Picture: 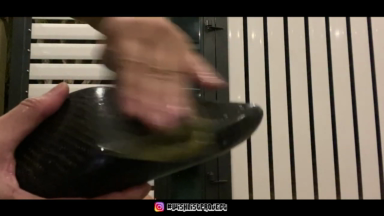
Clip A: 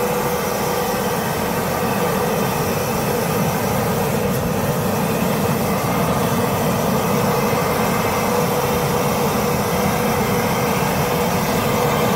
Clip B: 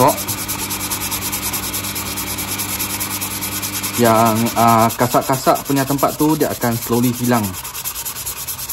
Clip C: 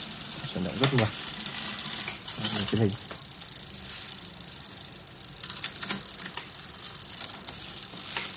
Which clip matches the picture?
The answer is B